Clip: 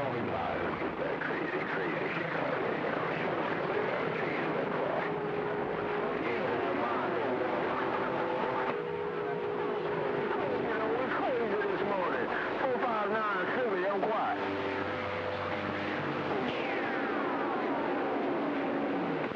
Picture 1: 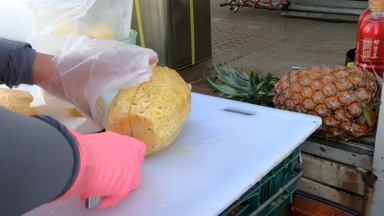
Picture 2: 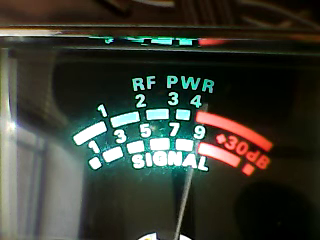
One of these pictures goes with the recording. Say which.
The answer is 2